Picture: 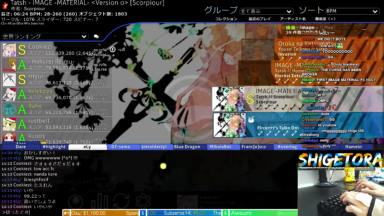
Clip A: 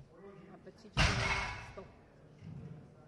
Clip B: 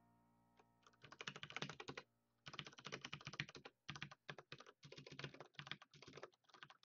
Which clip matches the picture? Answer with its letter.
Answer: B